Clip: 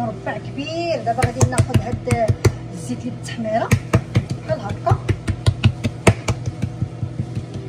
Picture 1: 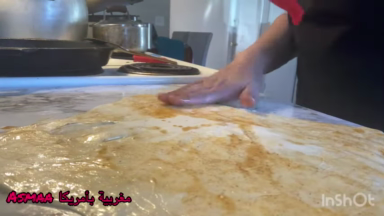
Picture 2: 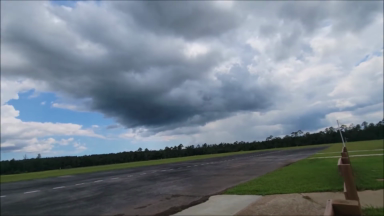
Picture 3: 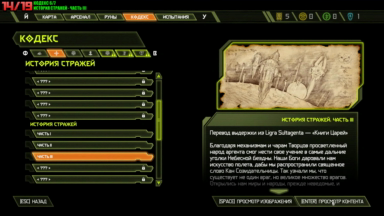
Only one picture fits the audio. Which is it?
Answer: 1